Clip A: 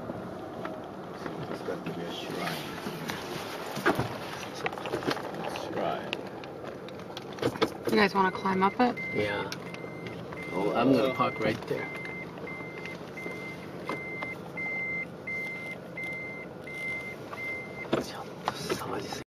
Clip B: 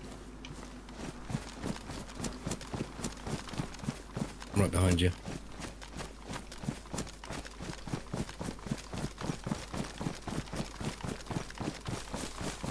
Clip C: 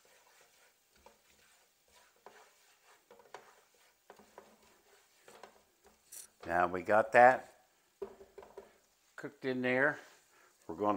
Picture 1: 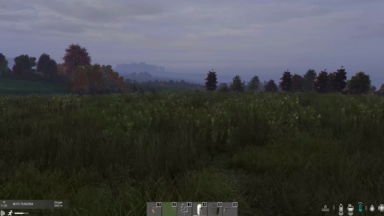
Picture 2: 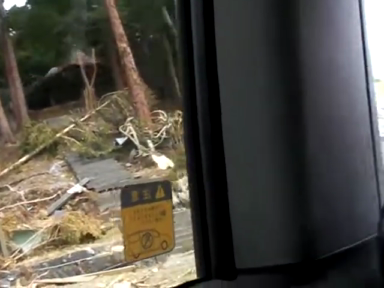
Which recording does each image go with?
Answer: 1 B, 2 A